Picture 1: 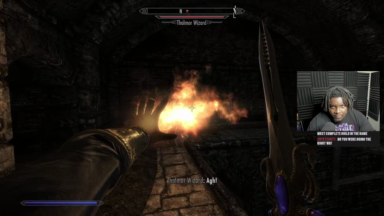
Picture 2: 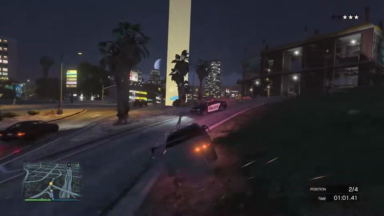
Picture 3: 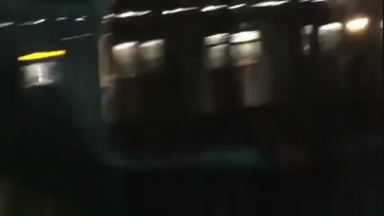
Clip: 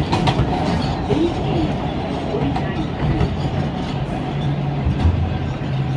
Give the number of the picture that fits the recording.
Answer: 3